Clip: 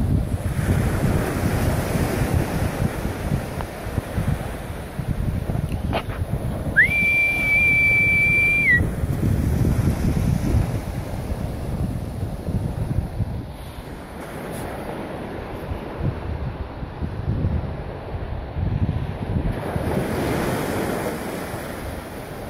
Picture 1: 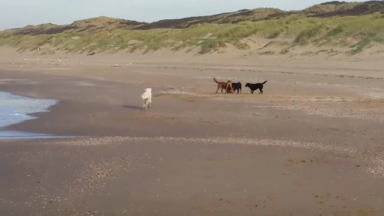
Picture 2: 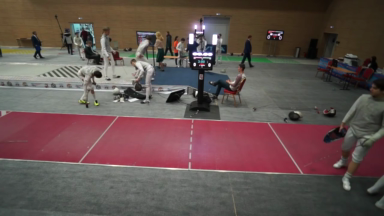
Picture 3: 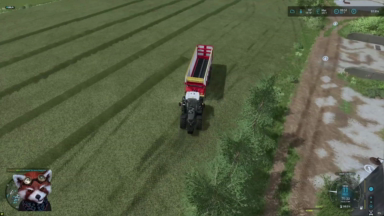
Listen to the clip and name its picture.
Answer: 1